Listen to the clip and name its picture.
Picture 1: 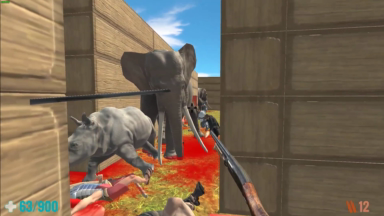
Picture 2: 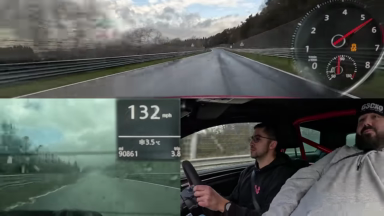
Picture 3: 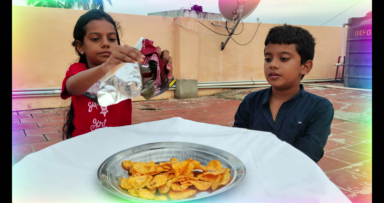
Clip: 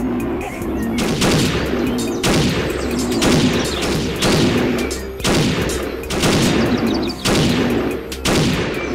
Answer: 1